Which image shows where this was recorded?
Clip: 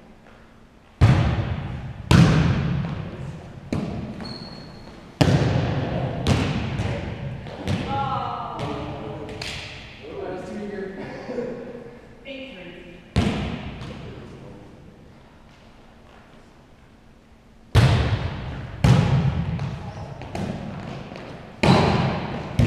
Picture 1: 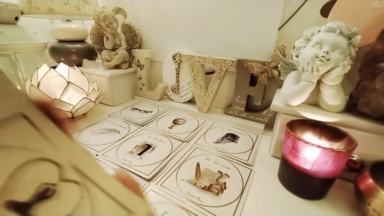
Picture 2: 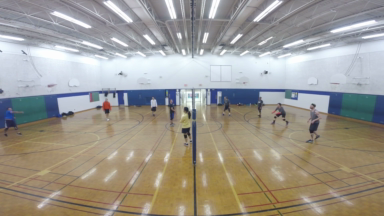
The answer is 2